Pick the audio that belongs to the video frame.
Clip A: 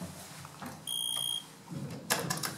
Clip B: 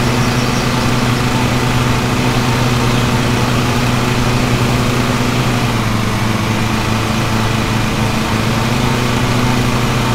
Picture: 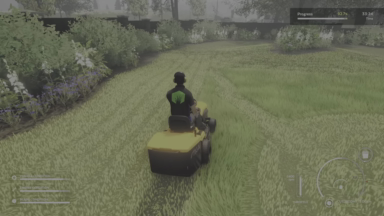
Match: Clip B